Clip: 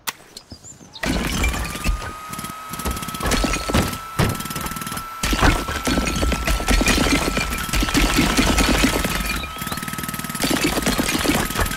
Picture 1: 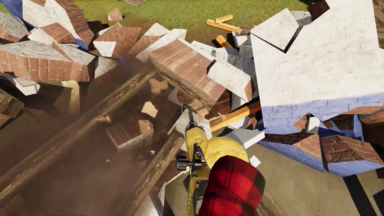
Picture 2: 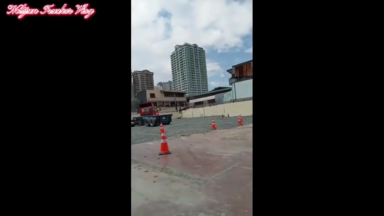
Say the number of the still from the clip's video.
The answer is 1